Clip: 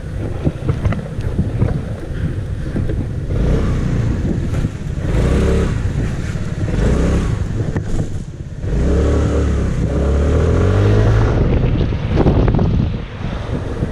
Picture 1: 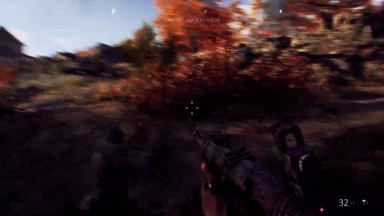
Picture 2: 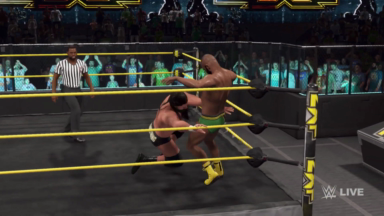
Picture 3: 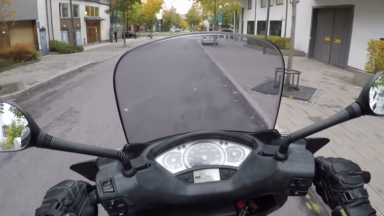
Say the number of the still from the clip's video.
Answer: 3